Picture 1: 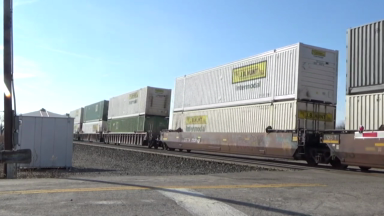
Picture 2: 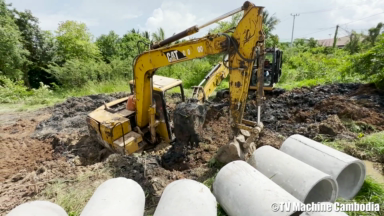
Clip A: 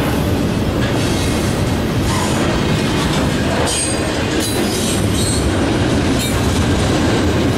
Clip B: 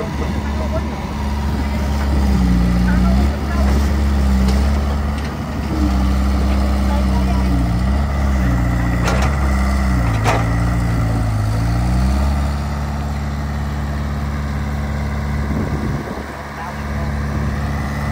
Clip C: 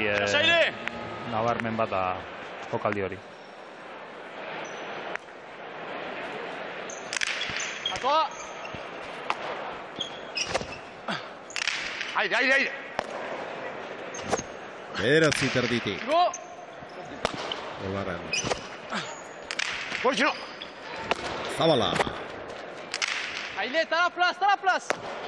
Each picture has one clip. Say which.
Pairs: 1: A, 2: B